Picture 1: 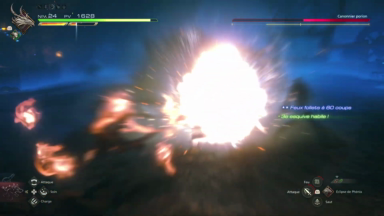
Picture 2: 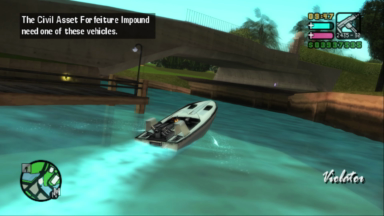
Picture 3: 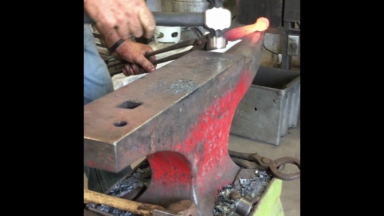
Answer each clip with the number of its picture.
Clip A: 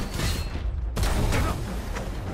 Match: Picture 1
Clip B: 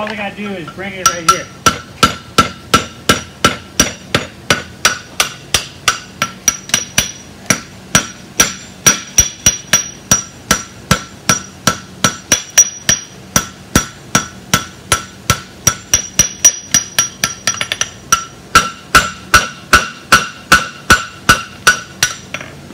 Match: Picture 3